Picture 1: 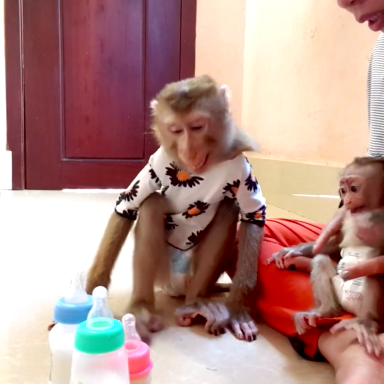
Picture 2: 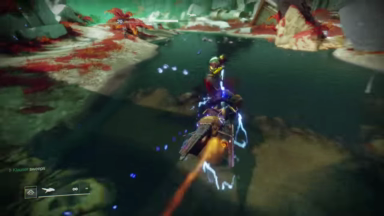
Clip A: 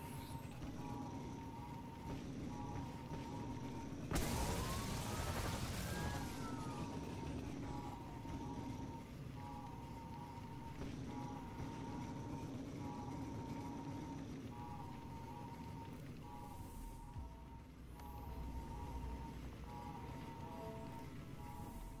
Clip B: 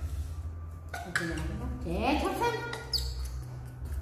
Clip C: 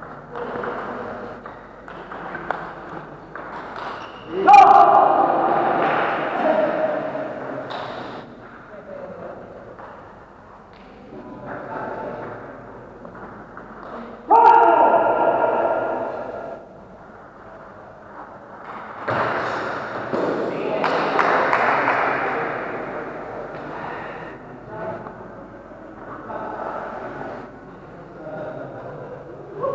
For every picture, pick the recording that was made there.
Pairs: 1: B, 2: A